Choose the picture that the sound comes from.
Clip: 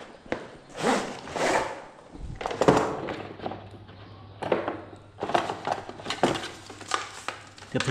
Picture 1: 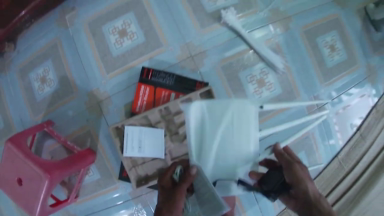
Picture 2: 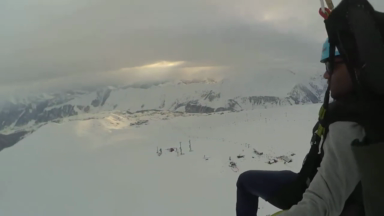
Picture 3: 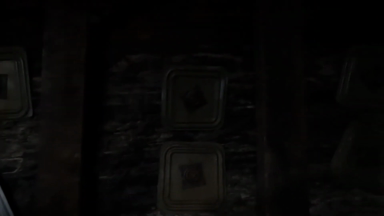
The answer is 1